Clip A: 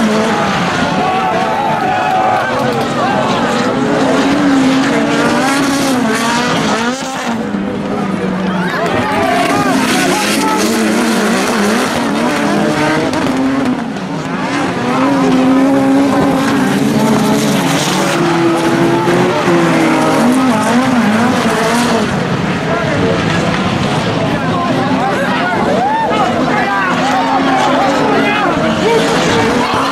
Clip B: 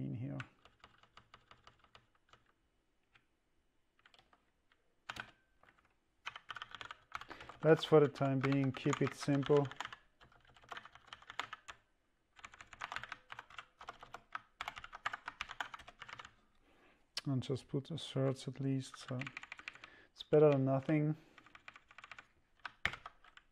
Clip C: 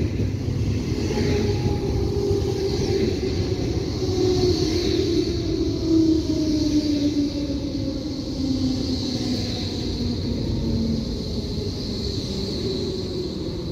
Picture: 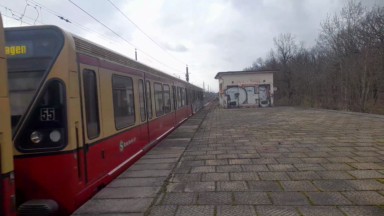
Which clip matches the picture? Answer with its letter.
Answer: C